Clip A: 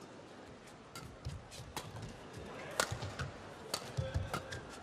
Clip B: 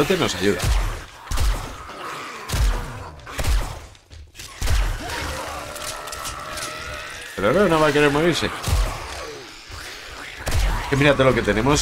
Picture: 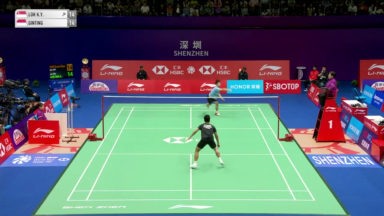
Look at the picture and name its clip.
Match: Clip A